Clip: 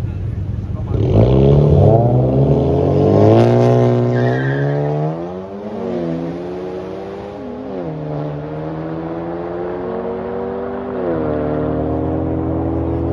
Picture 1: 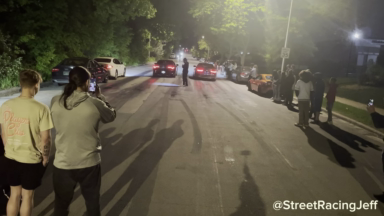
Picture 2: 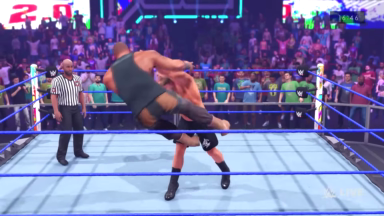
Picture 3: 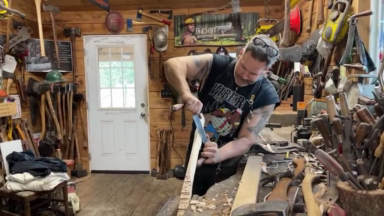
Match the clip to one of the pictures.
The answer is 1